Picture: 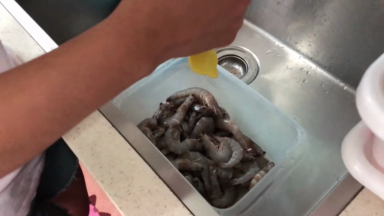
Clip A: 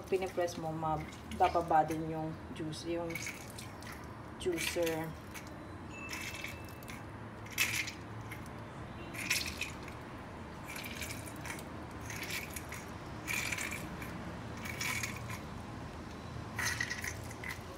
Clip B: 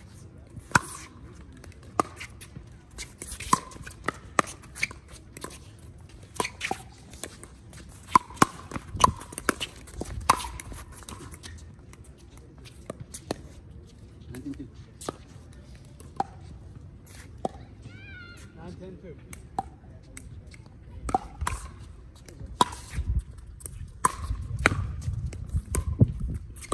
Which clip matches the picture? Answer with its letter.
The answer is A